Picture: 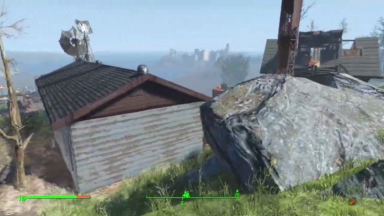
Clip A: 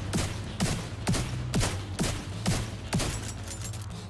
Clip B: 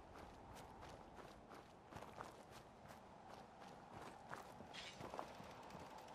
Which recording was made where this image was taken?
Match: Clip B